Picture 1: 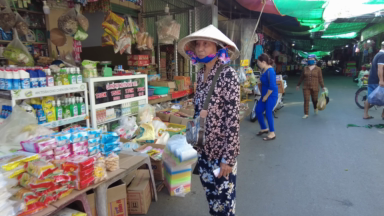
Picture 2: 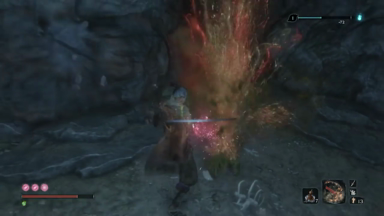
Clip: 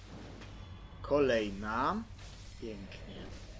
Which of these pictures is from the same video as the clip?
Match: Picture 2